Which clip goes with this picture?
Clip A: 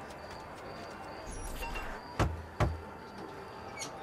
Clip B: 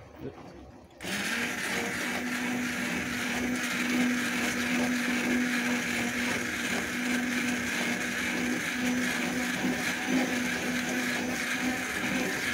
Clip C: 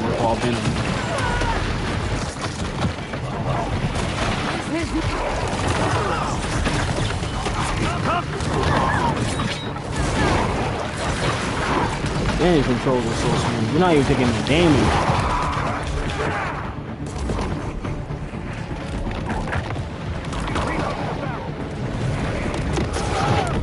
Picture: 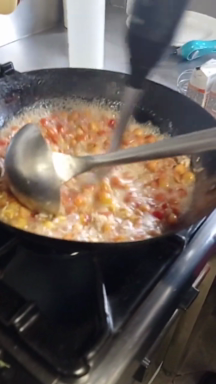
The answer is B